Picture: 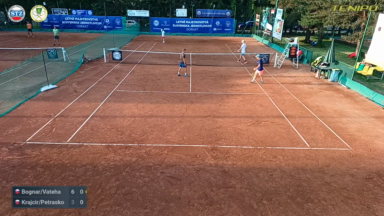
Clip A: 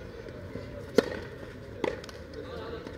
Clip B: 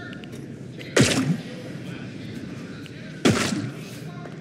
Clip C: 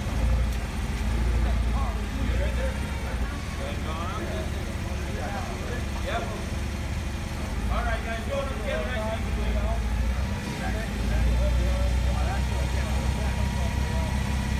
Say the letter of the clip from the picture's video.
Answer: A